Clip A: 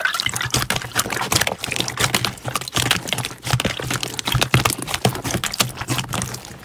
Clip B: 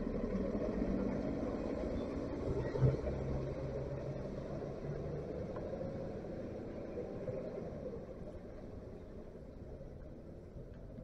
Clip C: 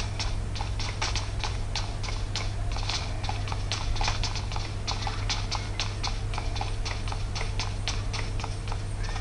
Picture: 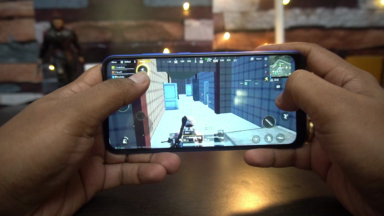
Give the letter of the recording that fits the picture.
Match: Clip C